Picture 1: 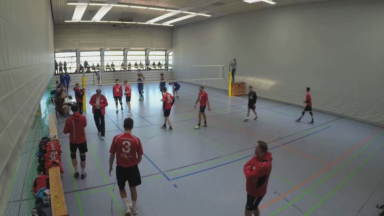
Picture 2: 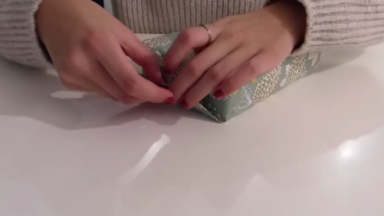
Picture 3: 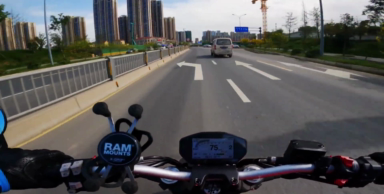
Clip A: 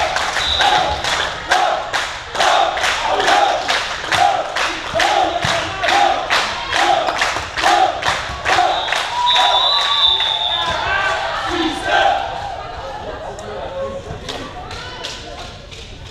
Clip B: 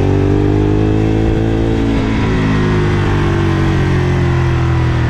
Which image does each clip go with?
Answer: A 1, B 3